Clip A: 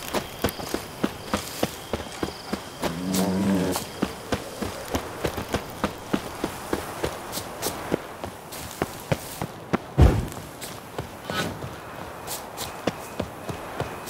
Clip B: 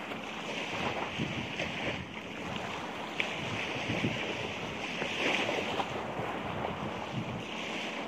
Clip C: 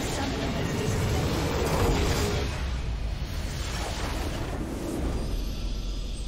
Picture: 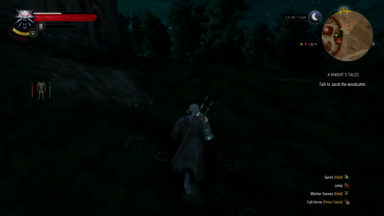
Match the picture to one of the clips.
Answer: A